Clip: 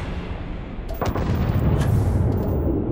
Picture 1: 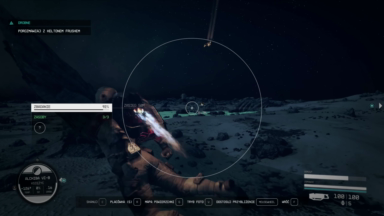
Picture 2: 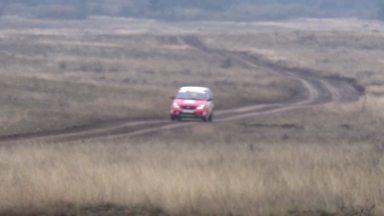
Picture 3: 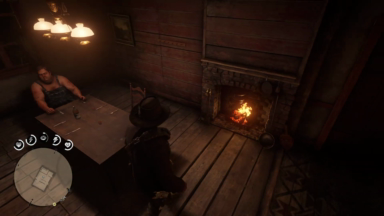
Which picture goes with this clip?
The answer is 1